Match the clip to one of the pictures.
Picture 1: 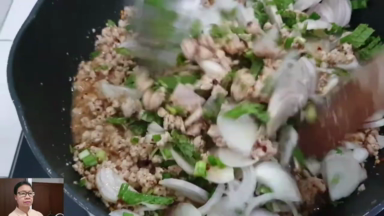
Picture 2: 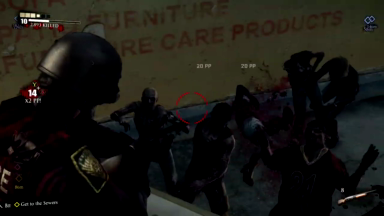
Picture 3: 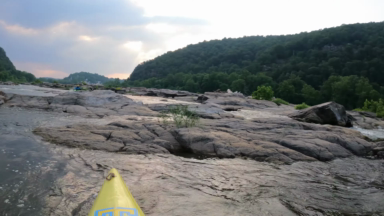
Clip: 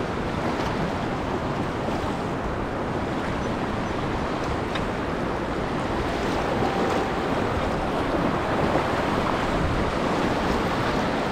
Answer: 3